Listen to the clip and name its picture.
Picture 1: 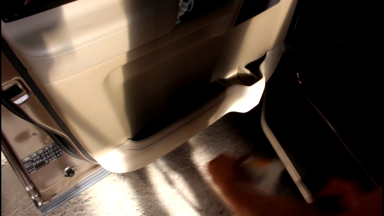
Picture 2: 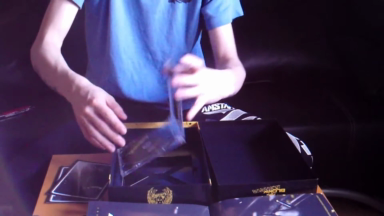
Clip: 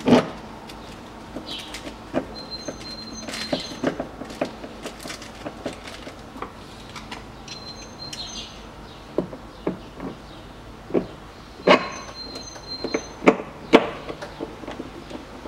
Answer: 1